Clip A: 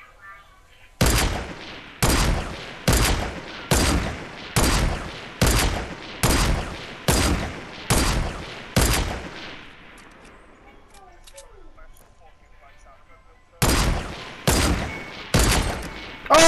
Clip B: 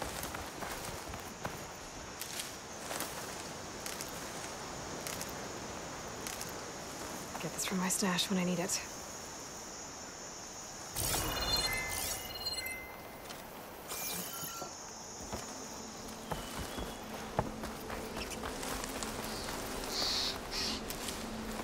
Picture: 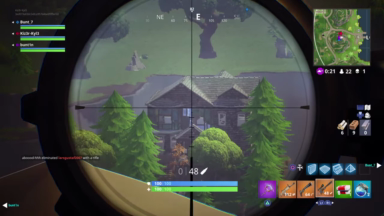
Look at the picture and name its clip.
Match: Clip A